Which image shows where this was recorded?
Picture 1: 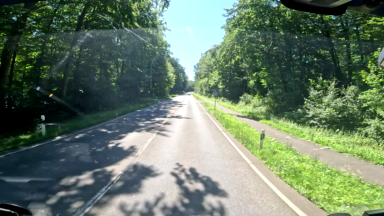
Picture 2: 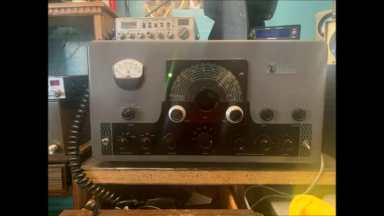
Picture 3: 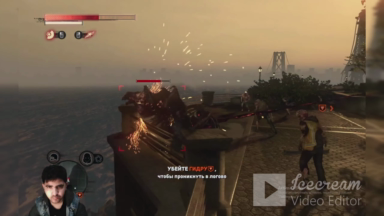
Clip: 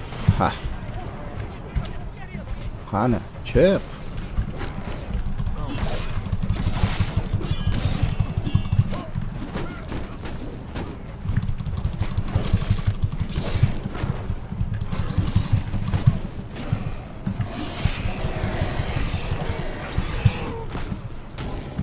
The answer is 3